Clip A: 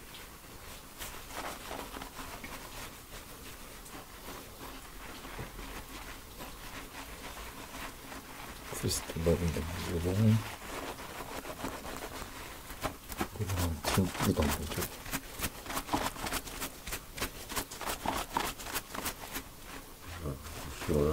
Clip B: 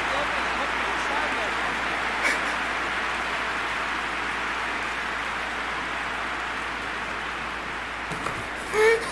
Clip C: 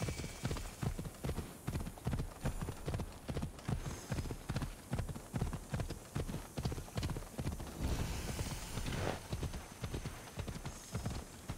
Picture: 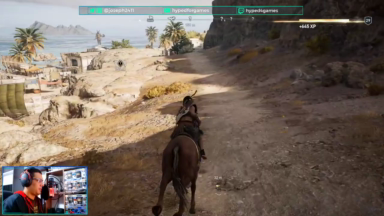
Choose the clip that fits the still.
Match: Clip C